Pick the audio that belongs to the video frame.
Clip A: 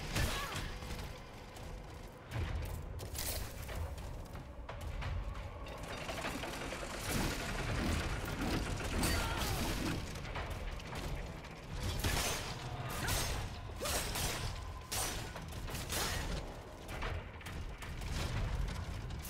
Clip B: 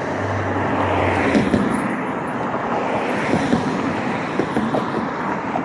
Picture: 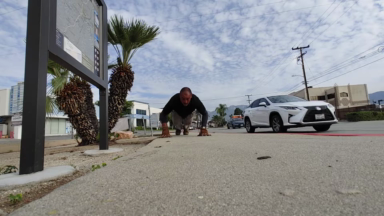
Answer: B